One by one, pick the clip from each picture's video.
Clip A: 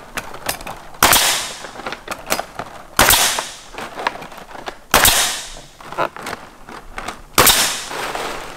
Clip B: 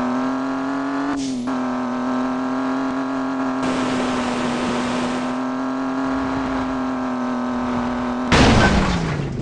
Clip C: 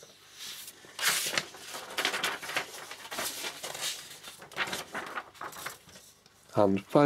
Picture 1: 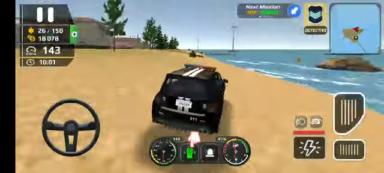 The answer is B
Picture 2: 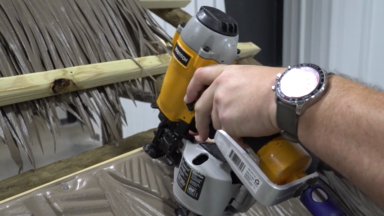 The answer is A